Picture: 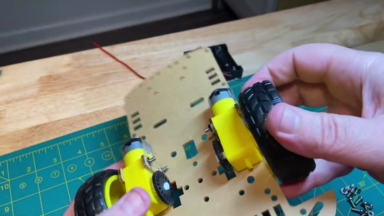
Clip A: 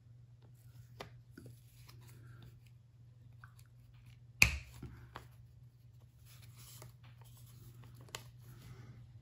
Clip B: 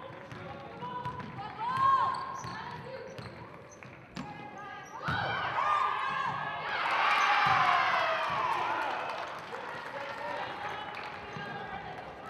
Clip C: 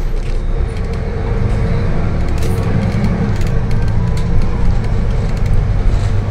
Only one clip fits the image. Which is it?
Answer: A